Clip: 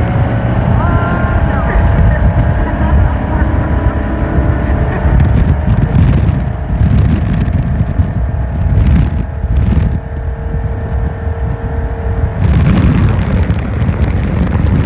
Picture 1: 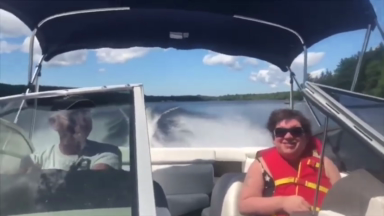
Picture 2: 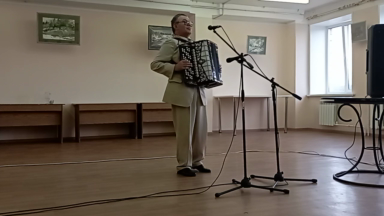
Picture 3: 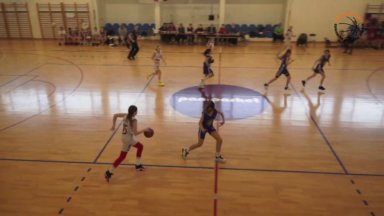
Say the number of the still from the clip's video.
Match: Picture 1